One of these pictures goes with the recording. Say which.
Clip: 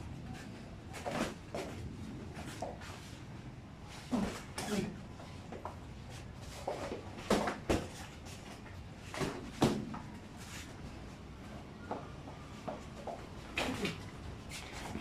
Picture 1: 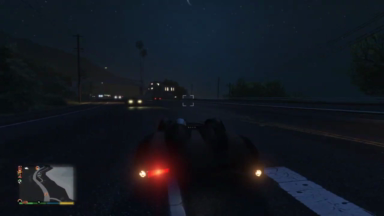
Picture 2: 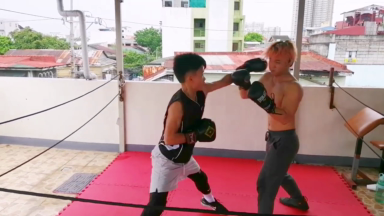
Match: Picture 2